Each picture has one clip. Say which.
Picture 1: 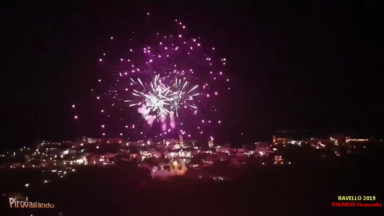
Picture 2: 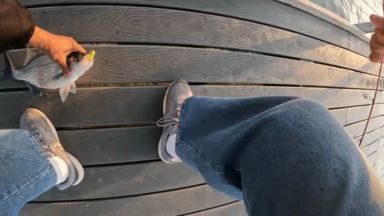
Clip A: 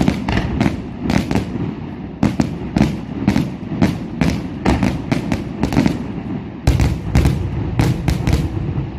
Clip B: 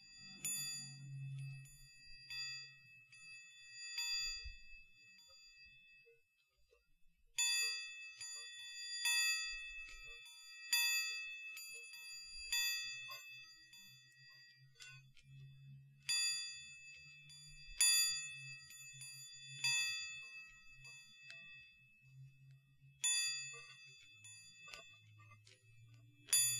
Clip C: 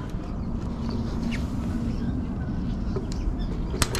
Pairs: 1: A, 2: C